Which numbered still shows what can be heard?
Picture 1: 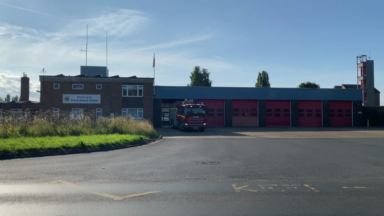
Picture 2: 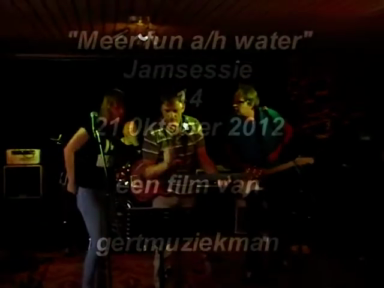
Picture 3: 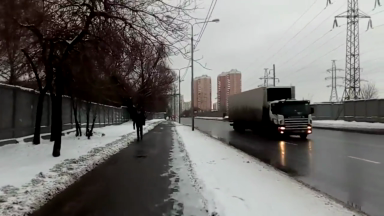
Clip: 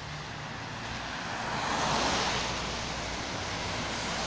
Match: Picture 3